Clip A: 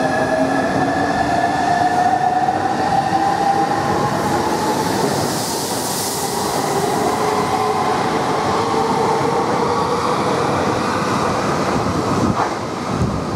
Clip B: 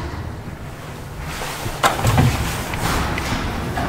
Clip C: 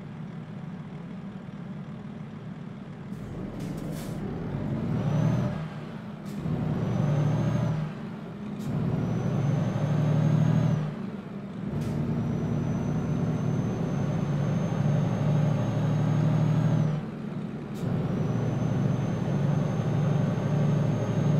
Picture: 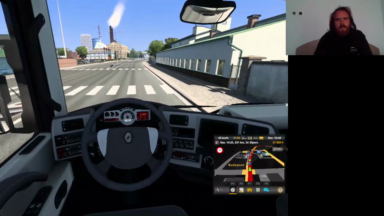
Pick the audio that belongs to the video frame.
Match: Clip C